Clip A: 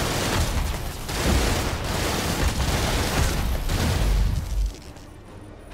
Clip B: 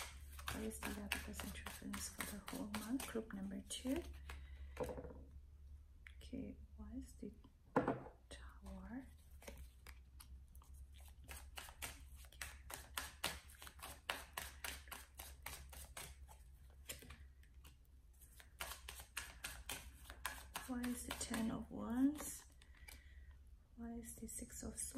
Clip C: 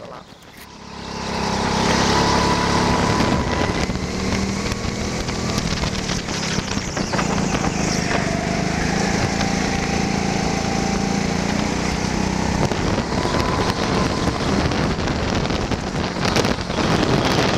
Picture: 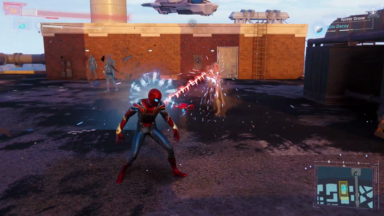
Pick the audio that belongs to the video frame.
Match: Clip A